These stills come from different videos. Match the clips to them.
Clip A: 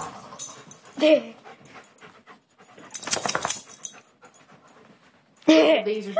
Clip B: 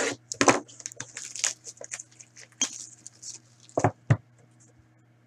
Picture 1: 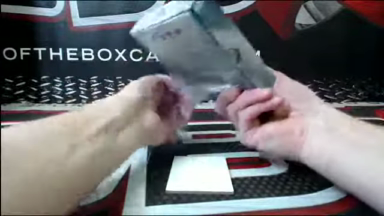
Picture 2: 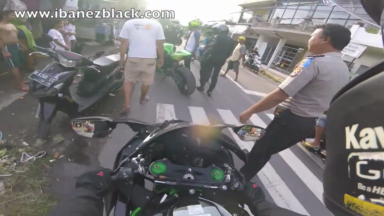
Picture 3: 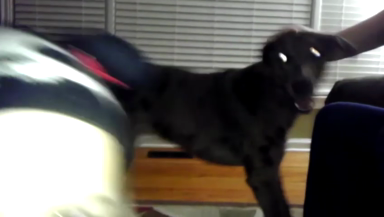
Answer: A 3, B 1